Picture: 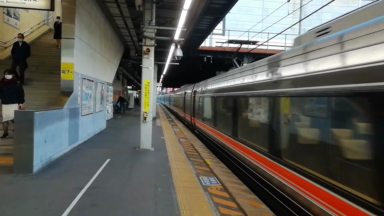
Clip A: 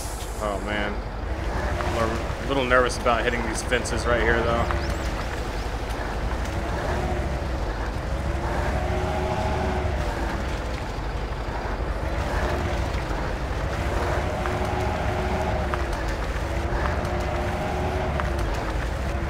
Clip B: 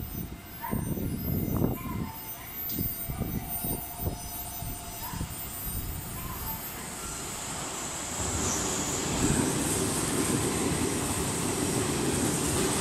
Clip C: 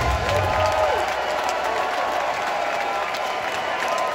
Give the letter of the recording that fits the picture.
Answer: B